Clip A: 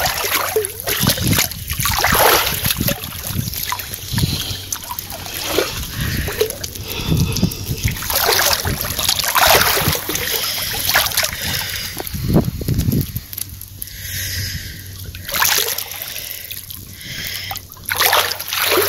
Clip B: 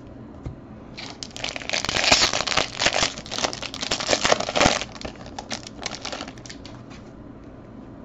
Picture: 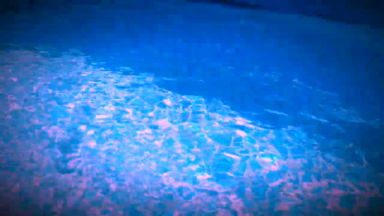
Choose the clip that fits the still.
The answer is A